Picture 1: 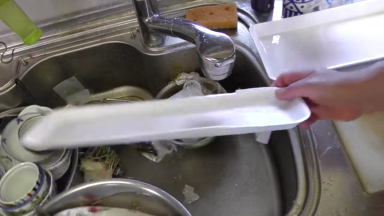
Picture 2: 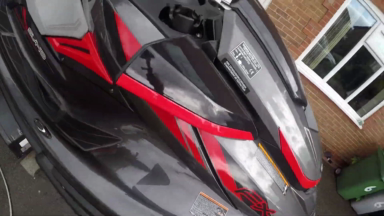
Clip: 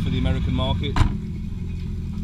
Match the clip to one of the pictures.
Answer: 2